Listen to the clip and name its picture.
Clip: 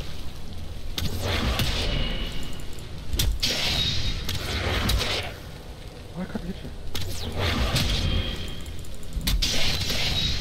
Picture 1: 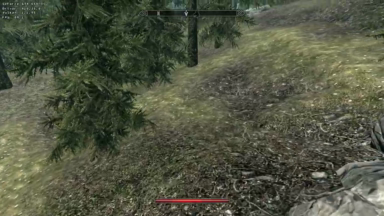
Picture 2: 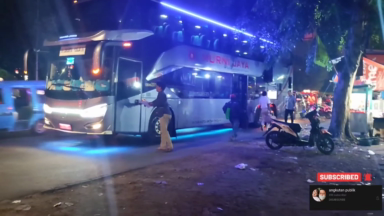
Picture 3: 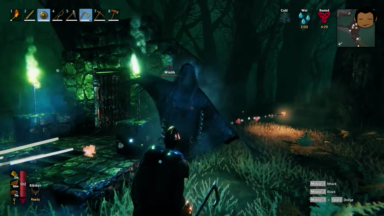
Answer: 3